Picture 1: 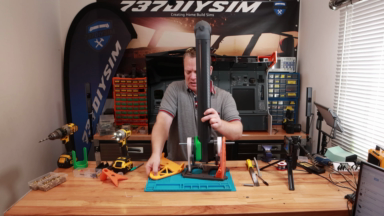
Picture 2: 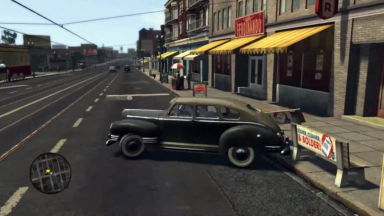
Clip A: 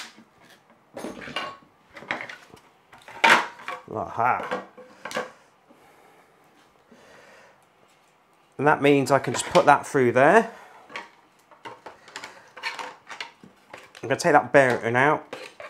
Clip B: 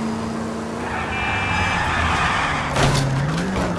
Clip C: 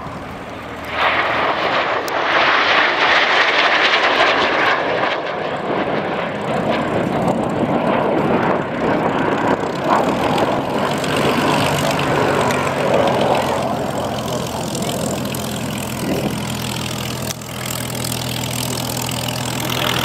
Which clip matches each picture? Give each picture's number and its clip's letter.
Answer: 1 A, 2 B